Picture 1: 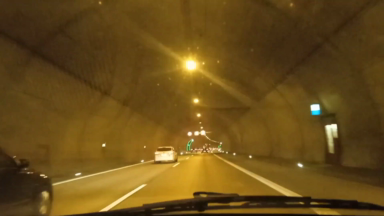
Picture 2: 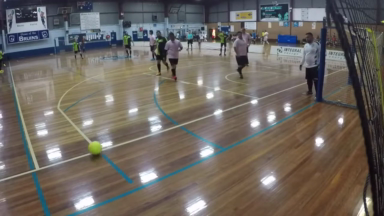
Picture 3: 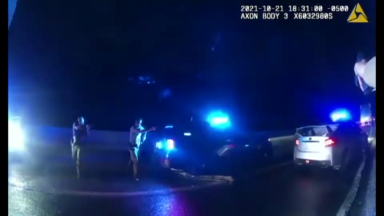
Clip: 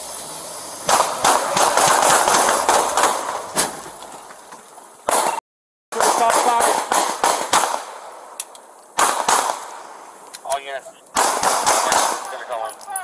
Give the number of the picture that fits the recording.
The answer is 3